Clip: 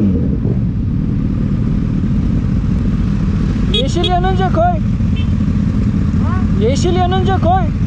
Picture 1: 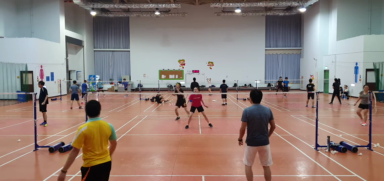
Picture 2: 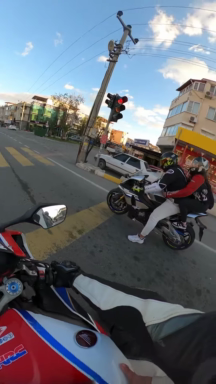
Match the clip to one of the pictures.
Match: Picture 2